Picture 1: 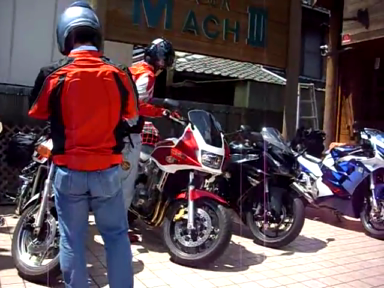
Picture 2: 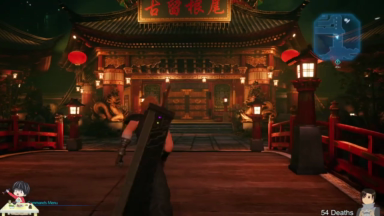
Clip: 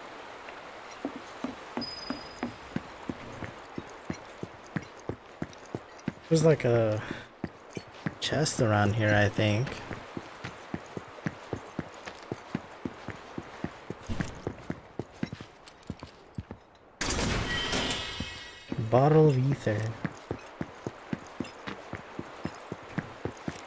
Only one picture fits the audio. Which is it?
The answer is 2